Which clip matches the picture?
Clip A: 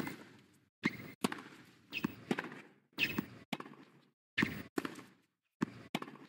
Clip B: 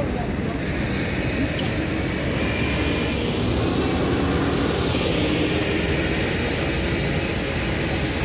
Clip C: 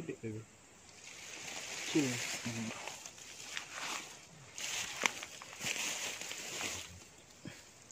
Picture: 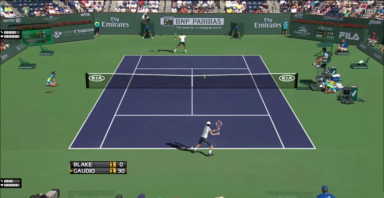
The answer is A